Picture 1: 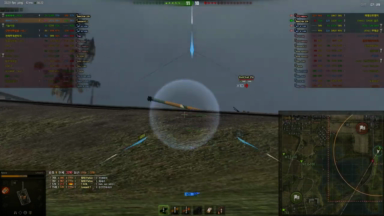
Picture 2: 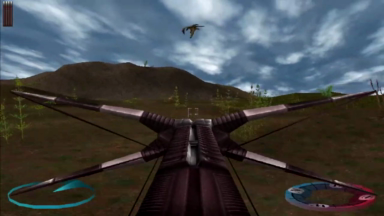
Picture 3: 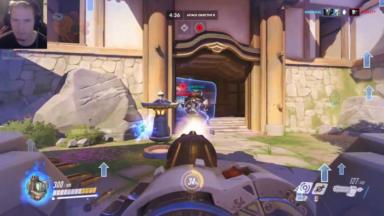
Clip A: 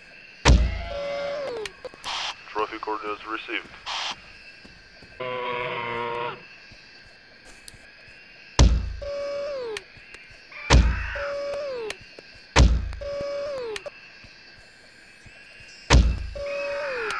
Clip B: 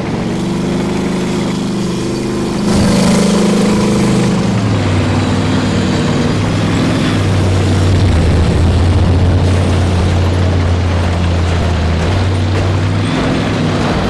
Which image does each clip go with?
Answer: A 2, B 1